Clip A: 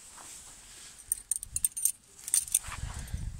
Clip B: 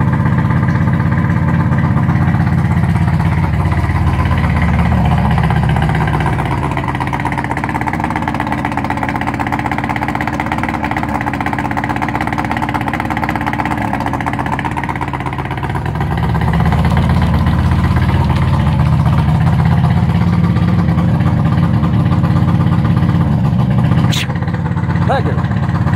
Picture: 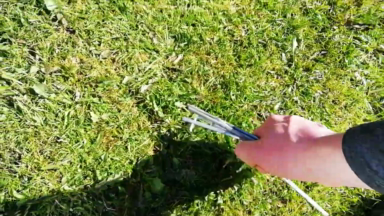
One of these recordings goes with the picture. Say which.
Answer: A